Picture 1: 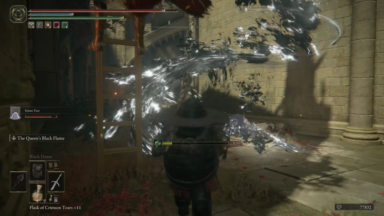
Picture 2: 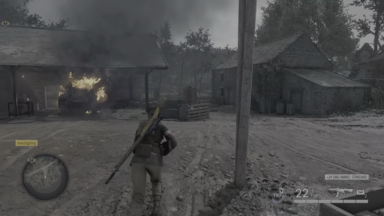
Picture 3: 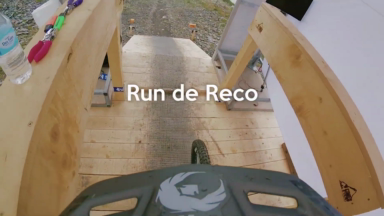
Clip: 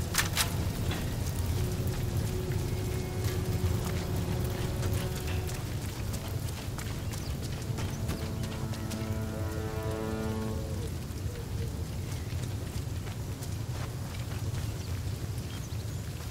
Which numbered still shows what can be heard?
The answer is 2